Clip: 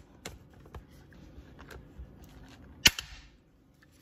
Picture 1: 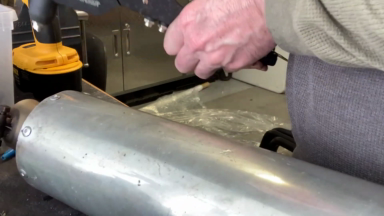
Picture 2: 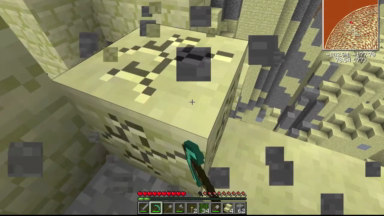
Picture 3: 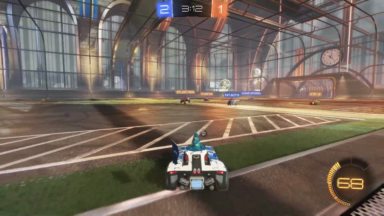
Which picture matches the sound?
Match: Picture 1